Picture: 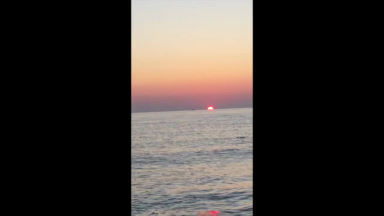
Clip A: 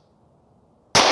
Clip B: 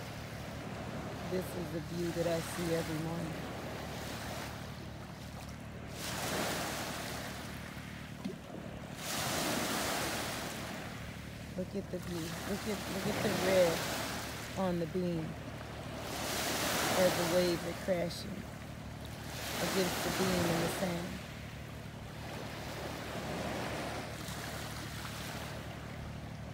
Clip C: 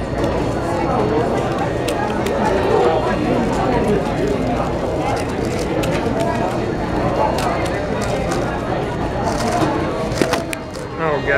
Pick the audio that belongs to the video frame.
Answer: B